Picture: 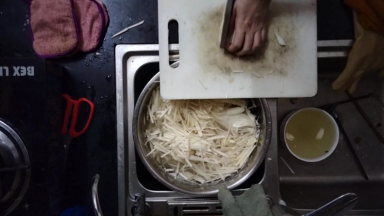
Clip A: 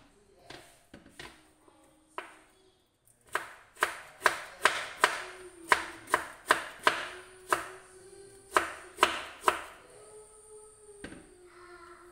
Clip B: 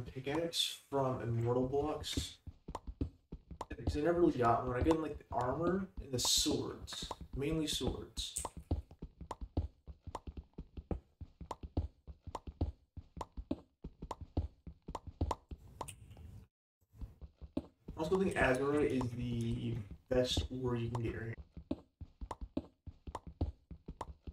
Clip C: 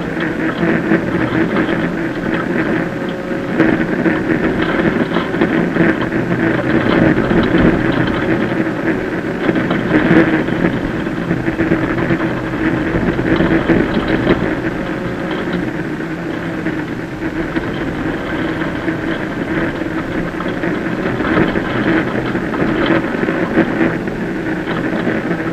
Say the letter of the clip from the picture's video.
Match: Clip A